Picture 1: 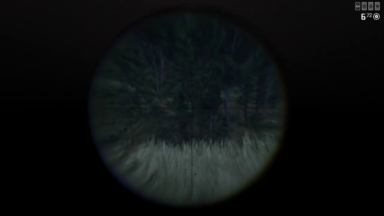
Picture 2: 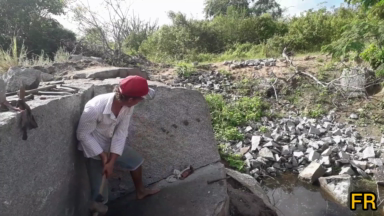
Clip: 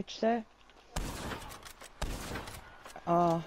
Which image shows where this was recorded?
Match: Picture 1